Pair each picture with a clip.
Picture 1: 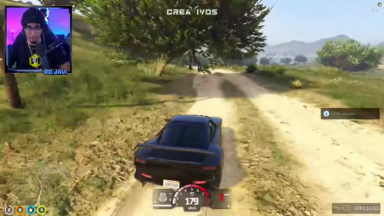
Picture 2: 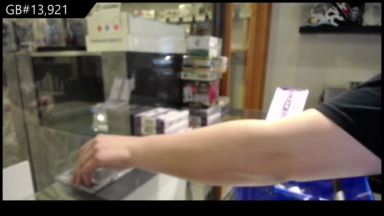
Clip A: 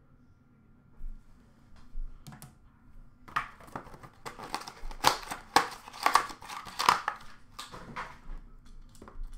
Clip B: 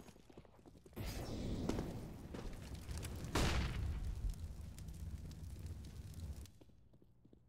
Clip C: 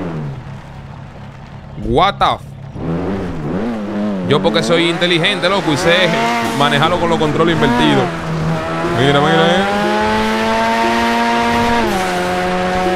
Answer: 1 C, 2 A